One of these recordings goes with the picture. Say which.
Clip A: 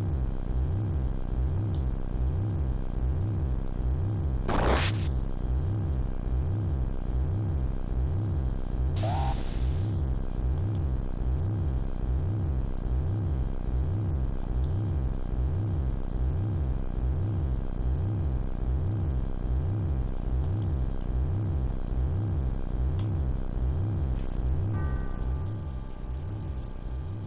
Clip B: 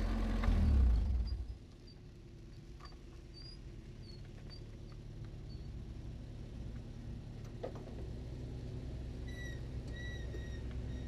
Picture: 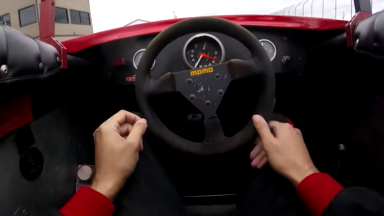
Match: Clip B